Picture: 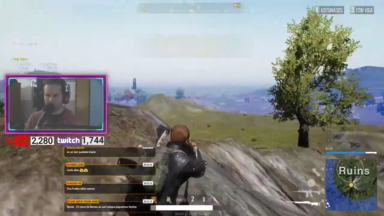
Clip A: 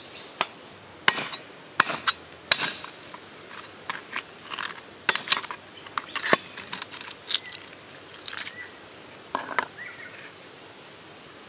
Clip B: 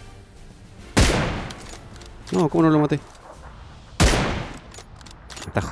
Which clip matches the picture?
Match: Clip B